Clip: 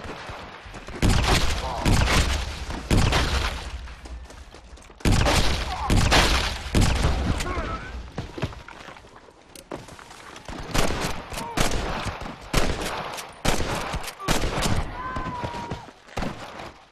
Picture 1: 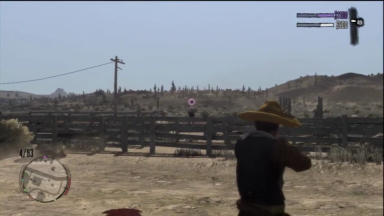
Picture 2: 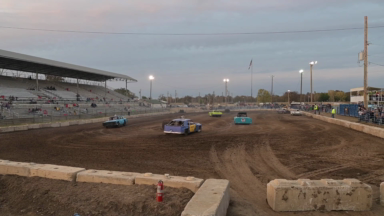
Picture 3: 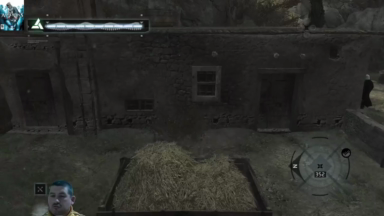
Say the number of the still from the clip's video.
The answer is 1